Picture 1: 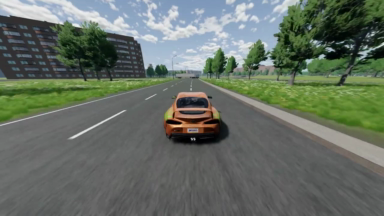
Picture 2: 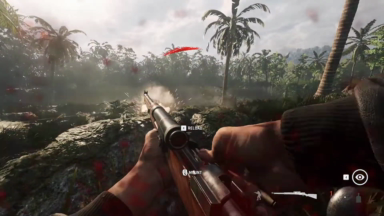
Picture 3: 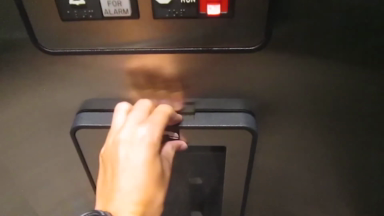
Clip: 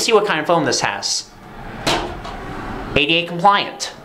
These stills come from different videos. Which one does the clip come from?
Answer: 3